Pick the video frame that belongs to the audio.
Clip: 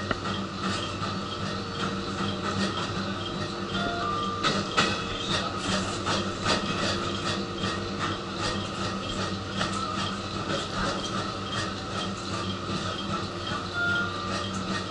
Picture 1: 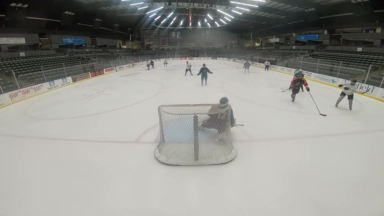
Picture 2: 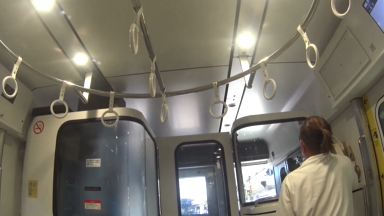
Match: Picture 2